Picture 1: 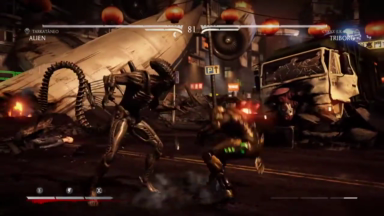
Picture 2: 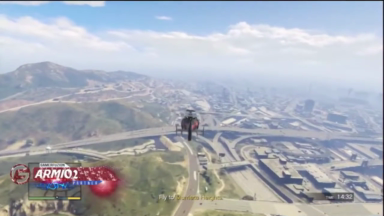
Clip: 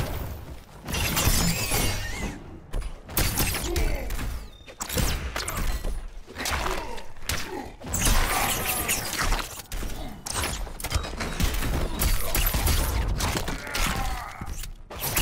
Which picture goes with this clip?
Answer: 1